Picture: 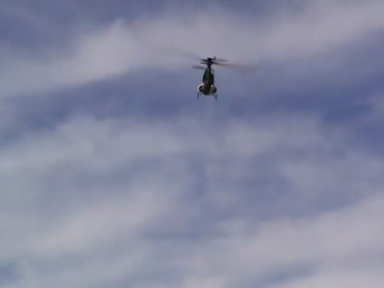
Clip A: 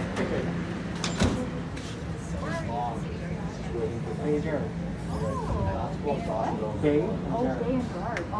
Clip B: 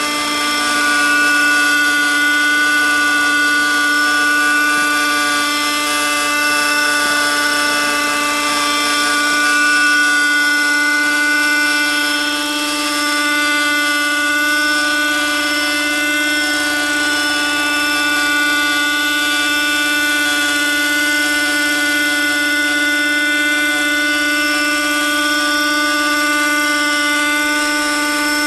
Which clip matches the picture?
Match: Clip B